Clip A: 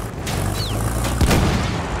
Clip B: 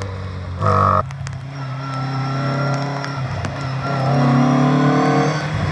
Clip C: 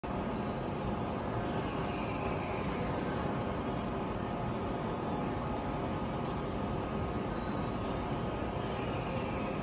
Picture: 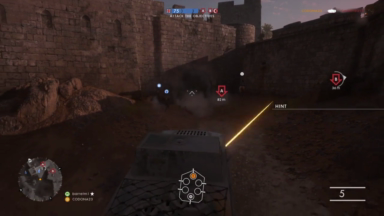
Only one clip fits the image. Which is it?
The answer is A